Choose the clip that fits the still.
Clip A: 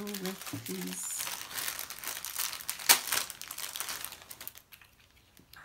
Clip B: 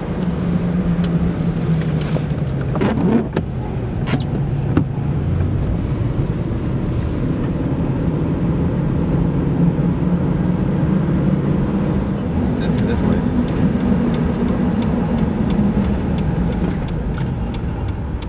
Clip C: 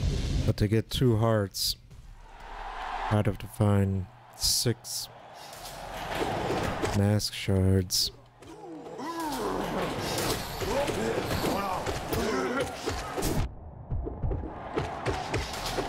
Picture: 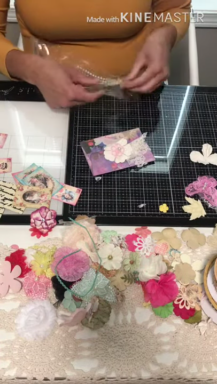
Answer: A